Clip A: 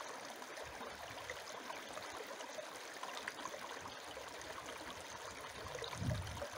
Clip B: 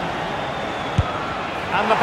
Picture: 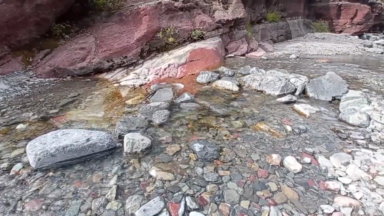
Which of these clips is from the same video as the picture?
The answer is A